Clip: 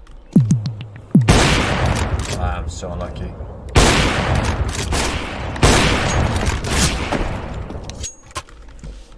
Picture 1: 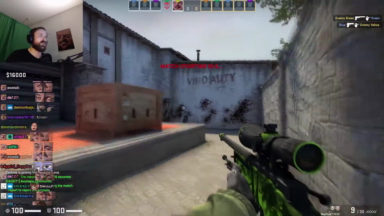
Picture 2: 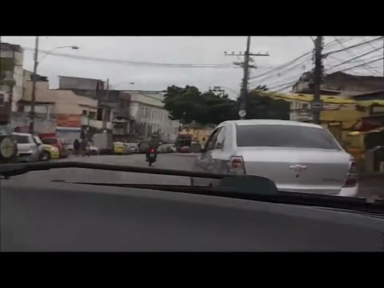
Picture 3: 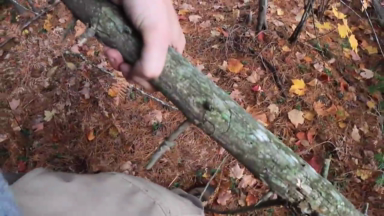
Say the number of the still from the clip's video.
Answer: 1